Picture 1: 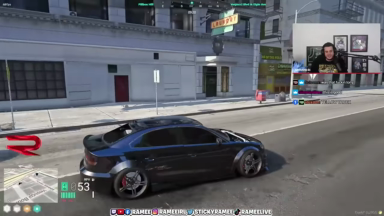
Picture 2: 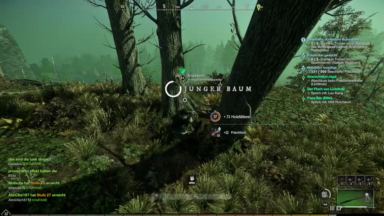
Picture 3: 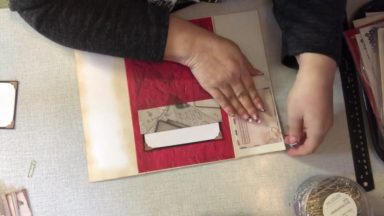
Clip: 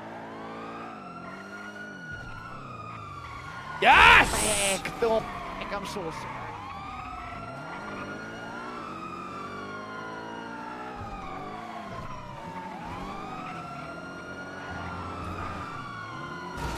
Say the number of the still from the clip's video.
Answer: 1